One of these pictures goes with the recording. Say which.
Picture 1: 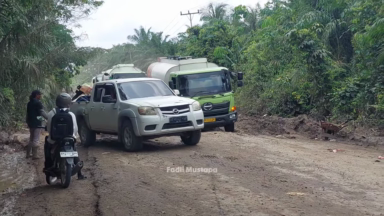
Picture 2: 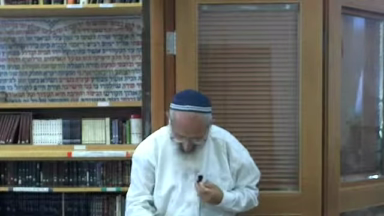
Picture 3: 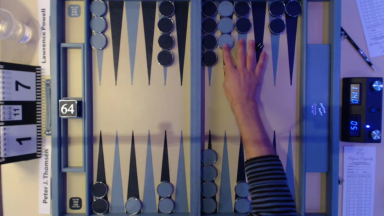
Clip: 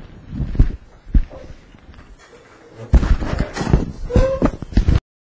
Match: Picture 2